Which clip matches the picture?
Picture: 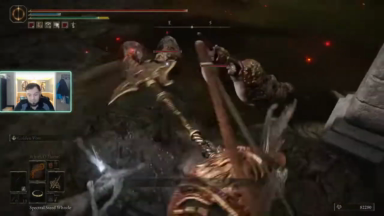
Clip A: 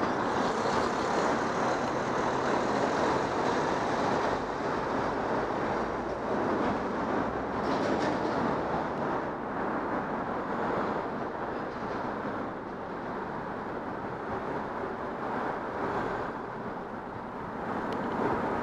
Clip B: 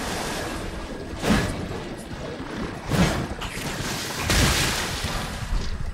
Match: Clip B